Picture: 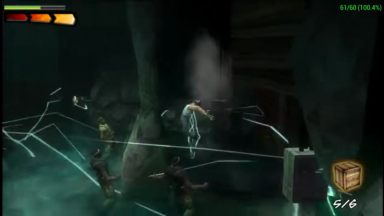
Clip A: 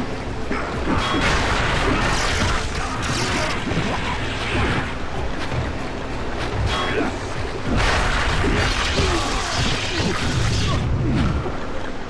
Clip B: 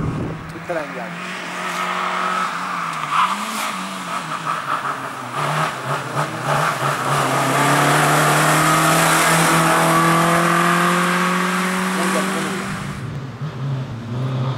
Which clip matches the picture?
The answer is A